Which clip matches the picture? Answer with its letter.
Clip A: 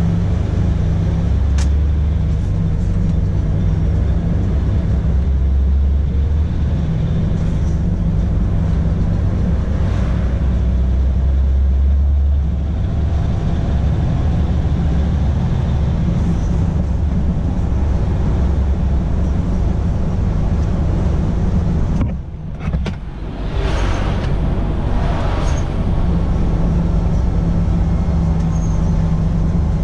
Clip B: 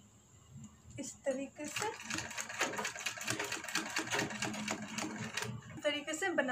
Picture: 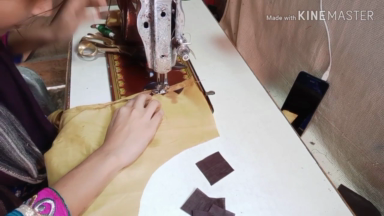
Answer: B